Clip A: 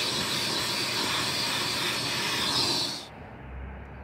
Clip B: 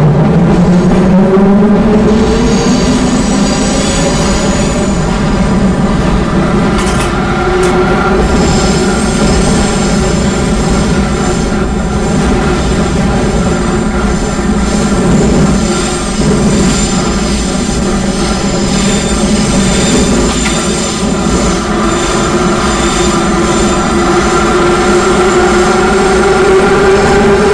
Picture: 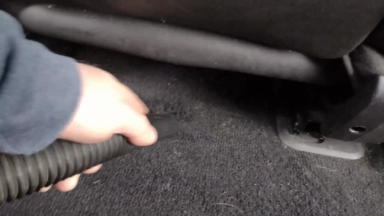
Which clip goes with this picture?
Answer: A